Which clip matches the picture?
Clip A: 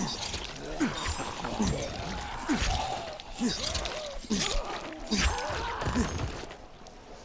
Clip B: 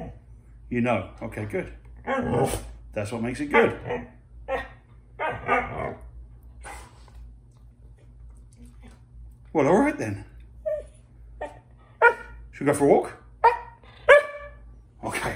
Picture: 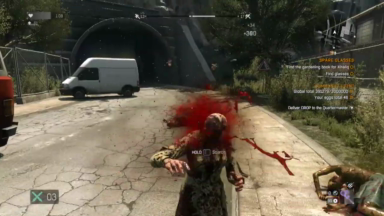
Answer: A